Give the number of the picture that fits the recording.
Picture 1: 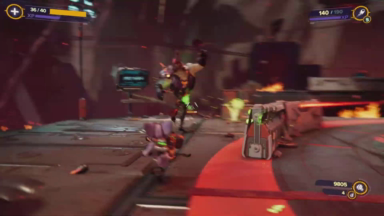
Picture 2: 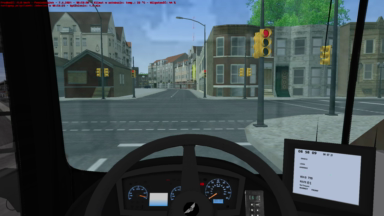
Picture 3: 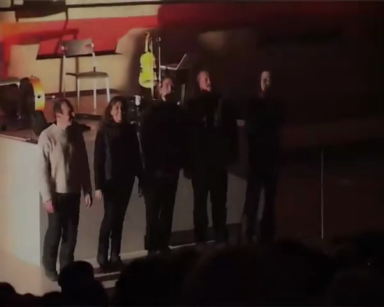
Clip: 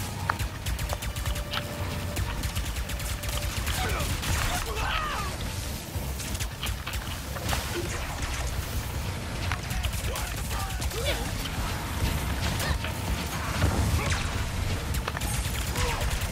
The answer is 1